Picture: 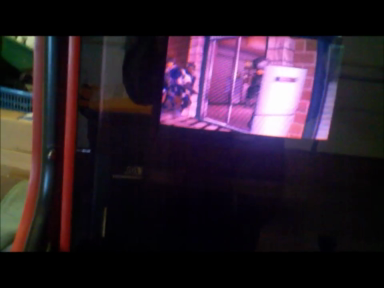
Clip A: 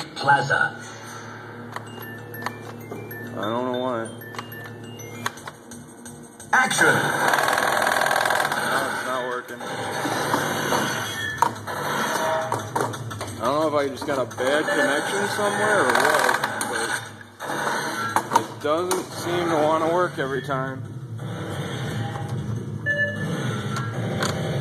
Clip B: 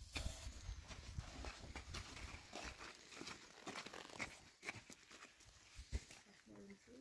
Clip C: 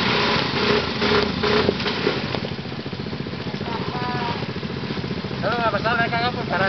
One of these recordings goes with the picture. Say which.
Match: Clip A